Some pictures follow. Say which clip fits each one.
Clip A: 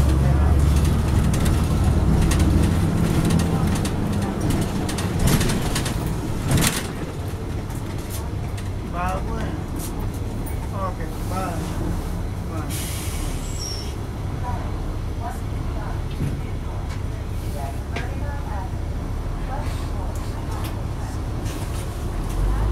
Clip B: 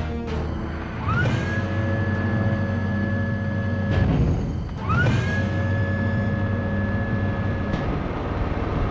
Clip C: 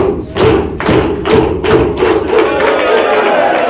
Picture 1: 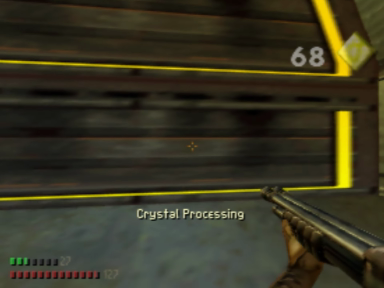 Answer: B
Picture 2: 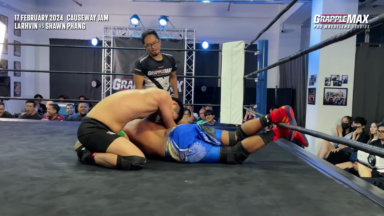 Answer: C